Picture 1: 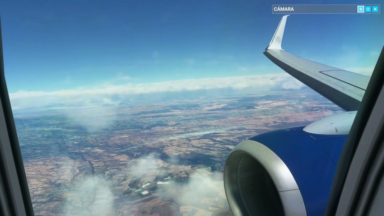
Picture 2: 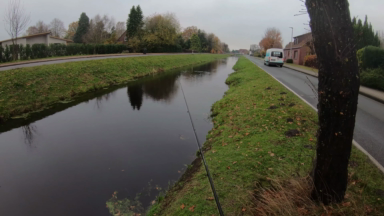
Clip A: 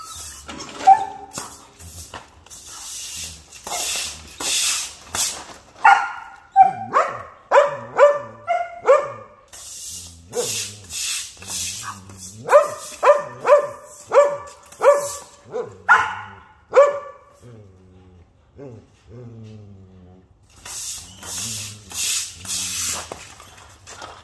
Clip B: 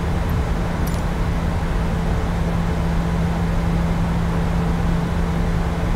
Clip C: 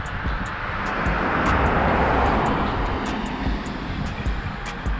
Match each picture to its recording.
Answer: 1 B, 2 C